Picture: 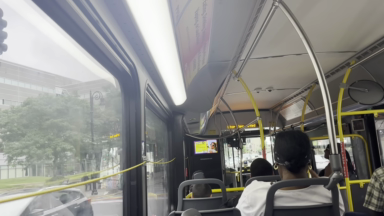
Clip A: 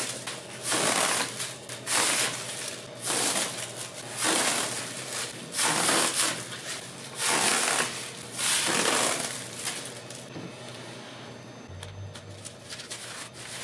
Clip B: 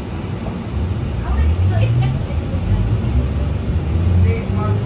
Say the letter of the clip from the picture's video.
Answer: B